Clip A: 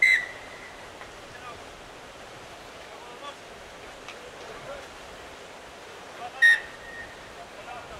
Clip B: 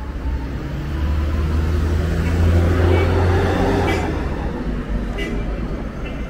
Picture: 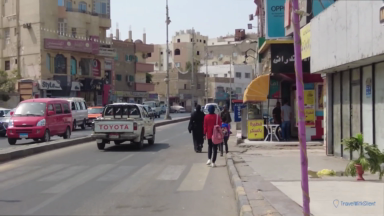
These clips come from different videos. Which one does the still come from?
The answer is B